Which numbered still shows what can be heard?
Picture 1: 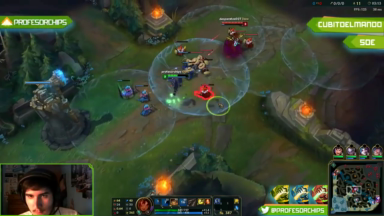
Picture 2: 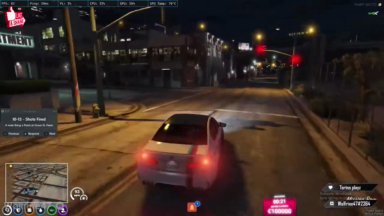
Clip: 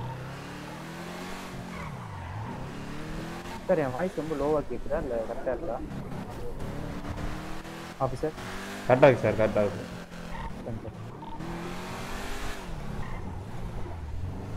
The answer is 2